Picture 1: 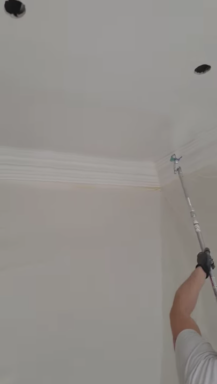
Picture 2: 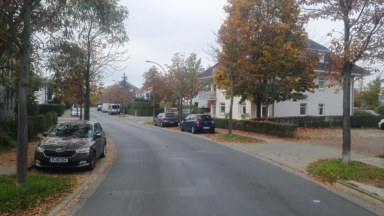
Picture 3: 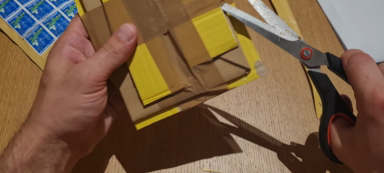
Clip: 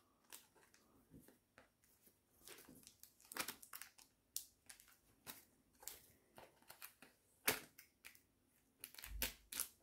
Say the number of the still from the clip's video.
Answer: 3